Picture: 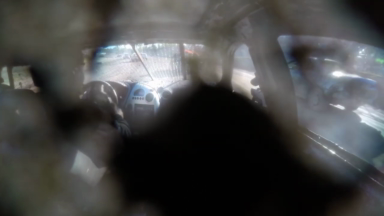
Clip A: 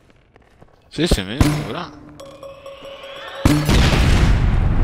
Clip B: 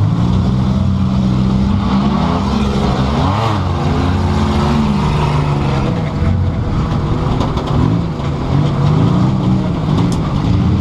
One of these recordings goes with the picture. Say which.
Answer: B